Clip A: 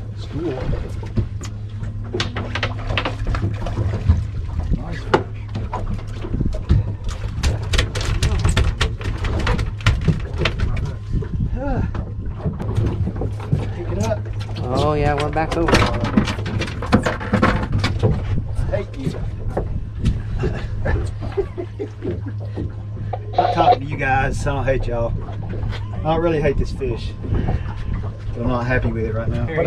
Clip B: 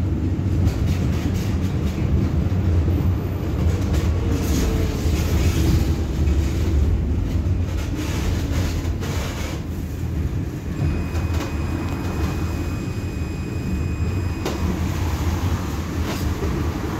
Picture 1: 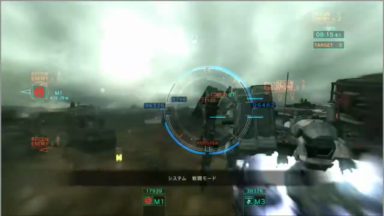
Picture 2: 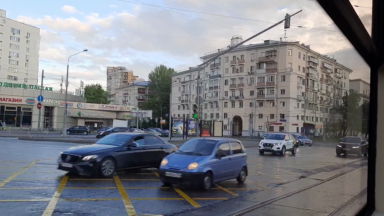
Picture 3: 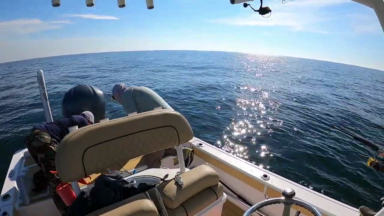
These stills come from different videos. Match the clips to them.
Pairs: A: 3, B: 2